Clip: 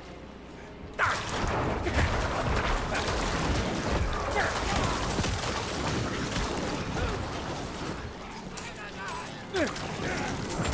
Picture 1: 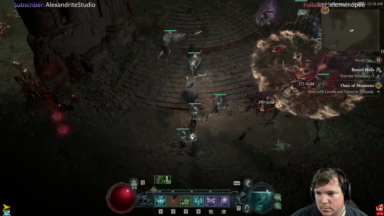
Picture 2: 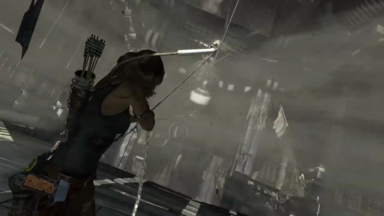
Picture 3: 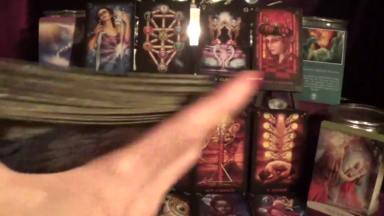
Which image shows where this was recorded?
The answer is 1